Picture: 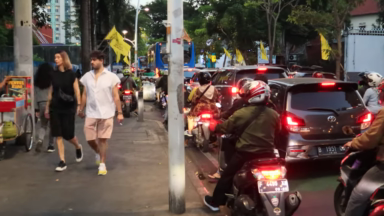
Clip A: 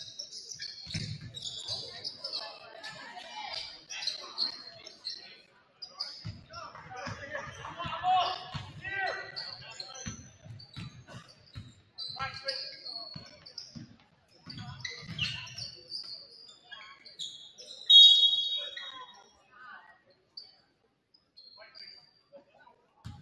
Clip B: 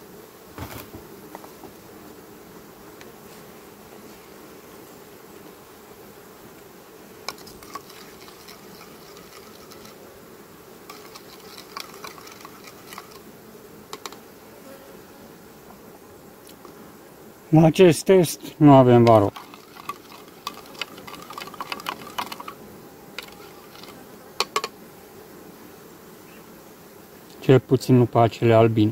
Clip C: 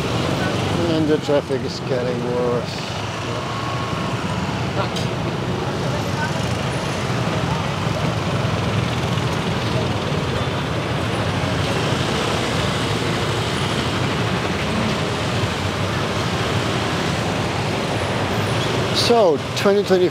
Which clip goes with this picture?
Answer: C